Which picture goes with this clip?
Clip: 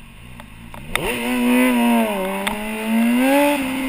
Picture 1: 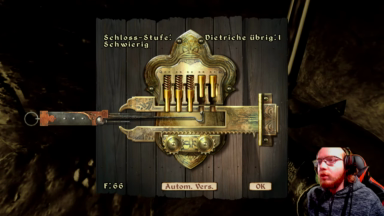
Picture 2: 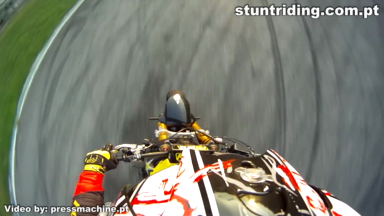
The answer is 2